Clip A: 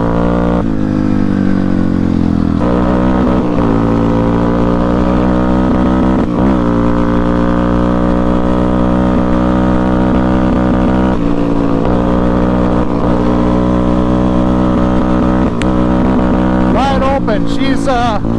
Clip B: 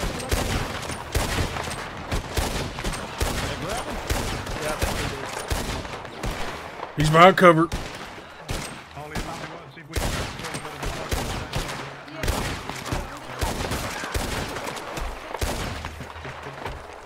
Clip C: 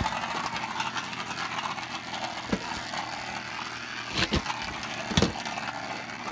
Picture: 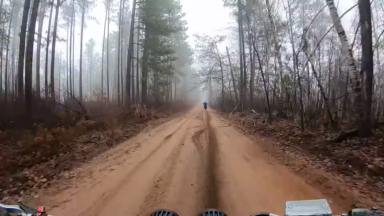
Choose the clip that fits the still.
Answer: A